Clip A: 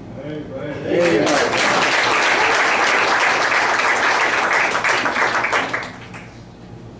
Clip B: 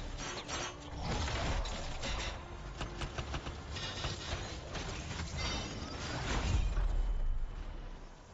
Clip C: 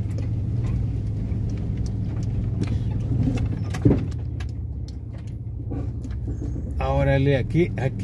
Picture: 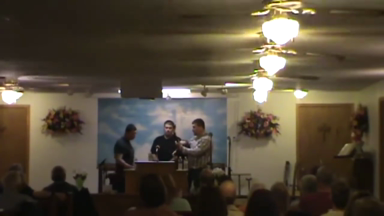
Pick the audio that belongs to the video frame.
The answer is A